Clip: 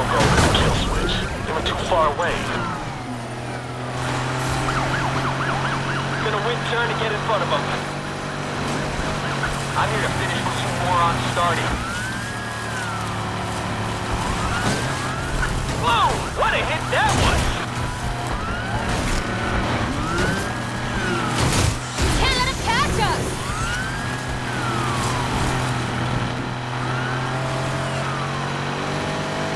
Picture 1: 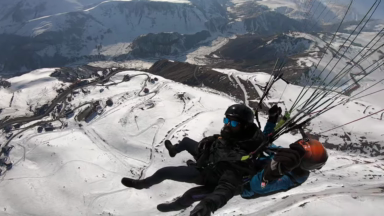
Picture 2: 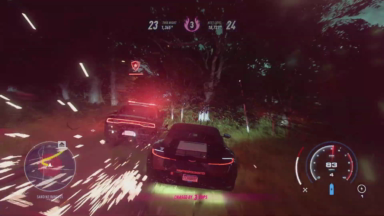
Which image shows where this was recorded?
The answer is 2